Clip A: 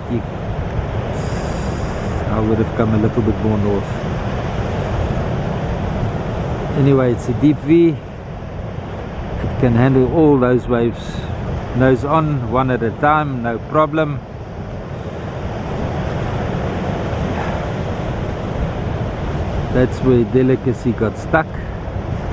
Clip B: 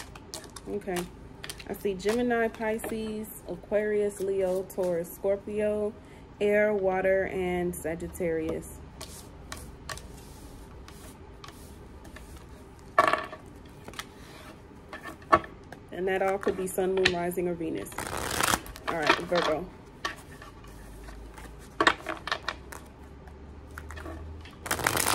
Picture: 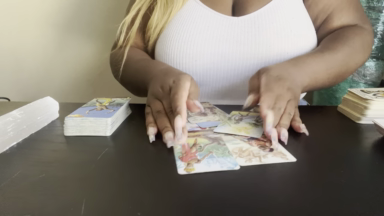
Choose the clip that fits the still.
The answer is B